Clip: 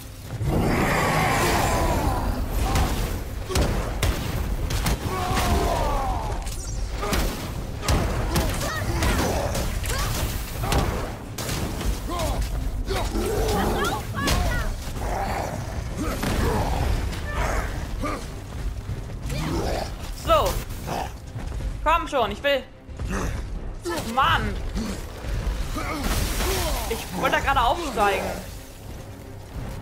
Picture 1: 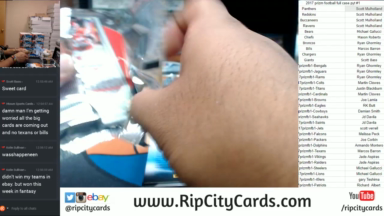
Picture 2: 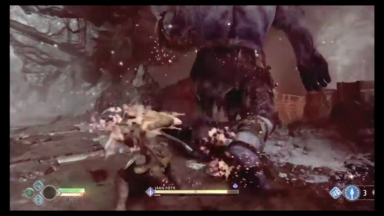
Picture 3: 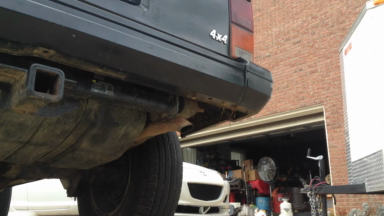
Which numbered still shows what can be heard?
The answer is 2